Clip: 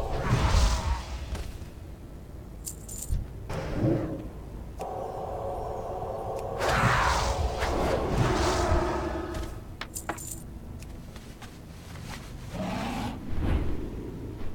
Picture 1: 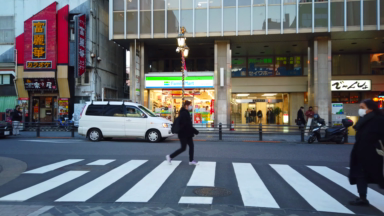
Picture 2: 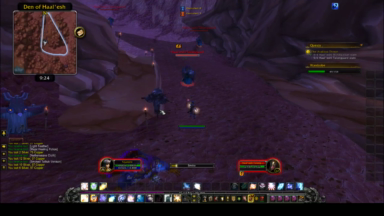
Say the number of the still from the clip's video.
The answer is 2